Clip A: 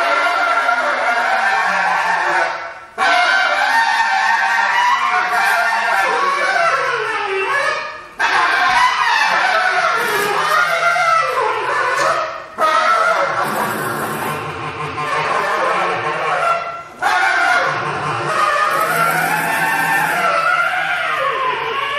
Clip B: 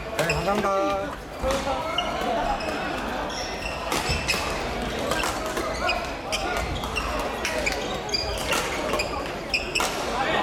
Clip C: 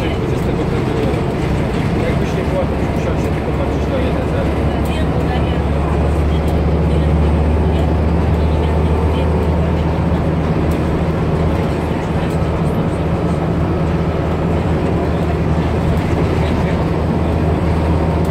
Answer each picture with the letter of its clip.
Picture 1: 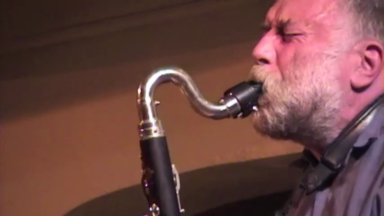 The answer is A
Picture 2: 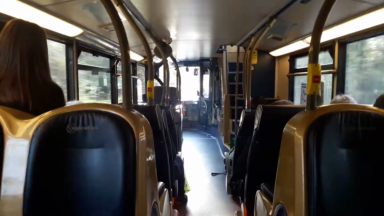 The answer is C